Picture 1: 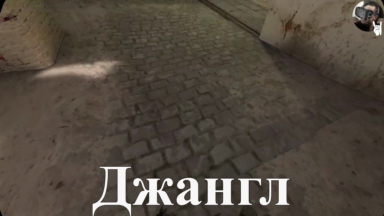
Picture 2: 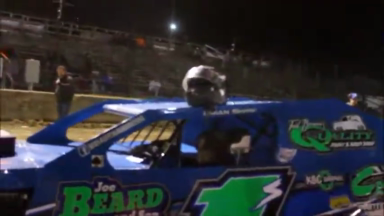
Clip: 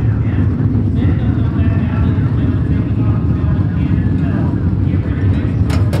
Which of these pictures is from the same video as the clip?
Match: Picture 2